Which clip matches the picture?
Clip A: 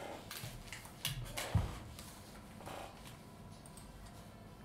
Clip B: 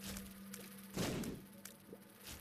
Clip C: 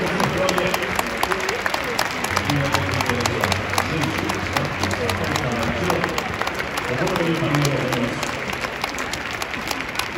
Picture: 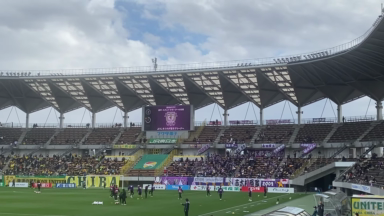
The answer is C